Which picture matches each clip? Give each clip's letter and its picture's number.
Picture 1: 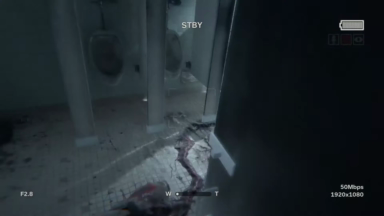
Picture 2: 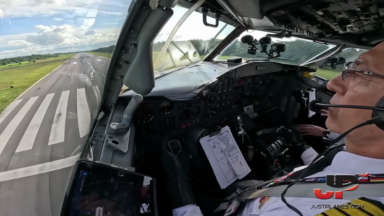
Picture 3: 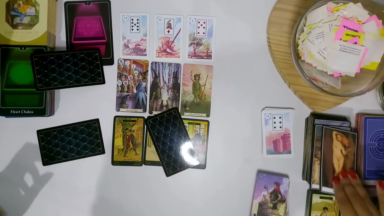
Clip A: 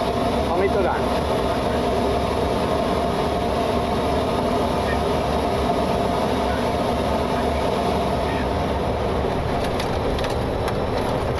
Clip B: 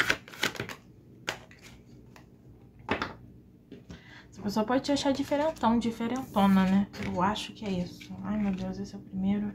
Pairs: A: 2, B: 3